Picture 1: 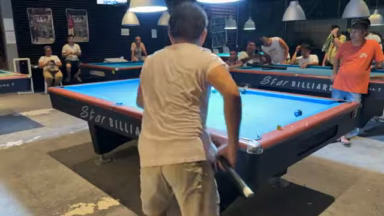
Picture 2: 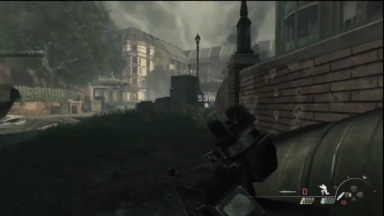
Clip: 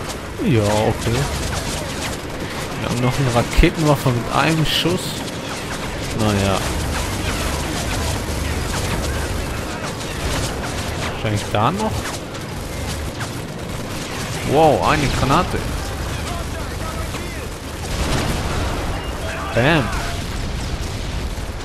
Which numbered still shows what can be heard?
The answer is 2